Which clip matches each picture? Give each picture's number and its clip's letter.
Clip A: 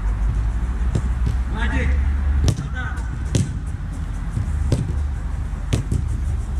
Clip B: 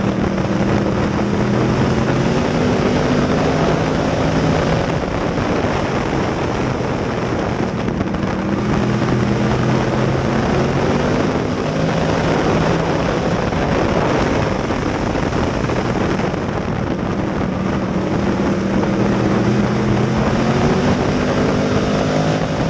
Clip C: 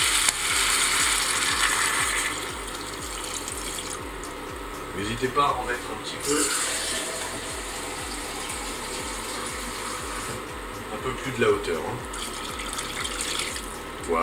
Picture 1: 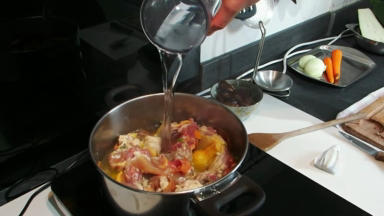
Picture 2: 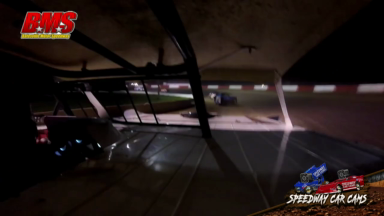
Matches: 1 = C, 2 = B